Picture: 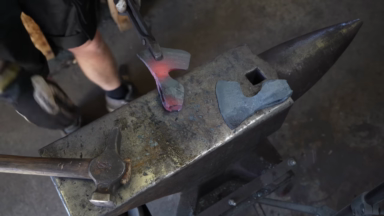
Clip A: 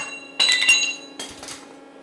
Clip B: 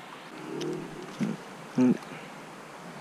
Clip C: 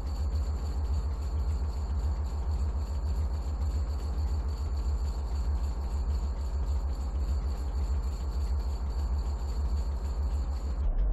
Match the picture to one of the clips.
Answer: A